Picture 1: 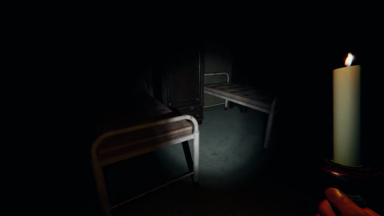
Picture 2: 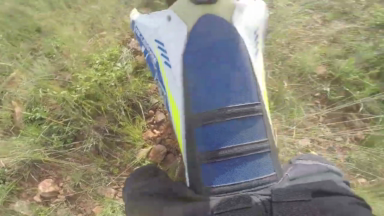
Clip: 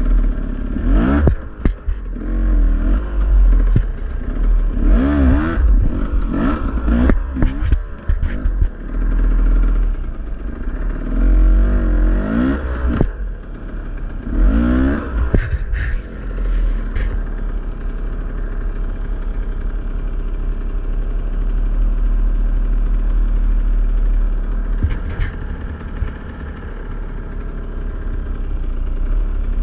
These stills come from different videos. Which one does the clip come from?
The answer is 2